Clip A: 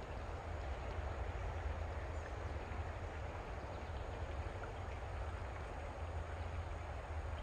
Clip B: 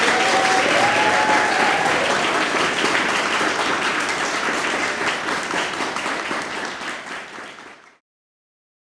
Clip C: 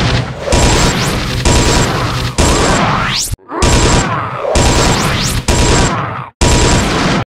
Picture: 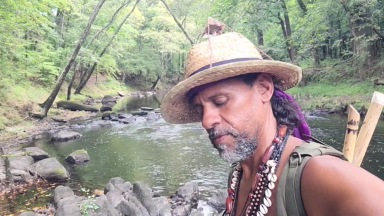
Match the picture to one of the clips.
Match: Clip A